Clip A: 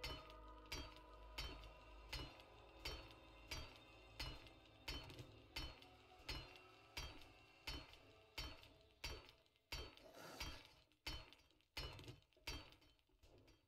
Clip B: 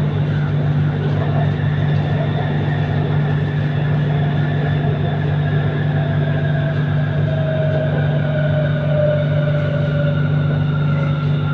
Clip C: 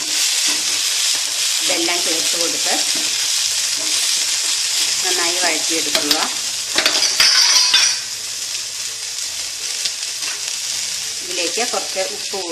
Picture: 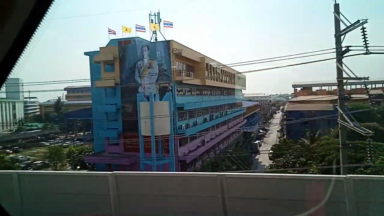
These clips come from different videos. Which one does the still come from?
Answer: B